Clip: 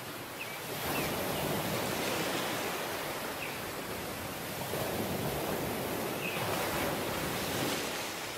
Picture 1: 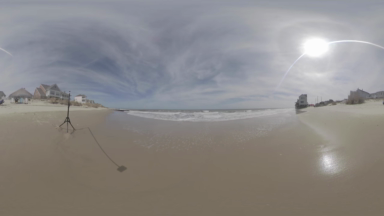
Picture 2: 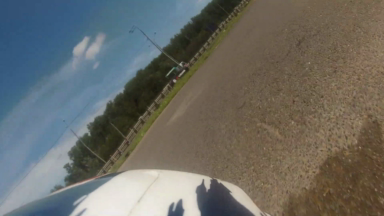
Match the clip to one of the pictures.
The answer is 1